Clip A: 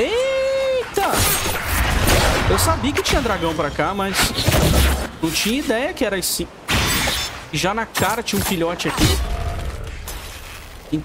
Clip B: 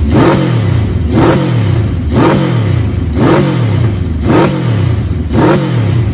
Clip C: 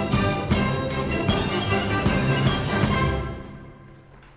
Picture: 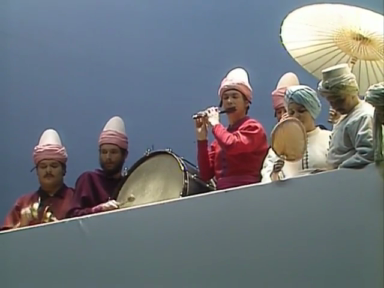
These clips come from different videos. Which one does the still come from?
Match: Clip C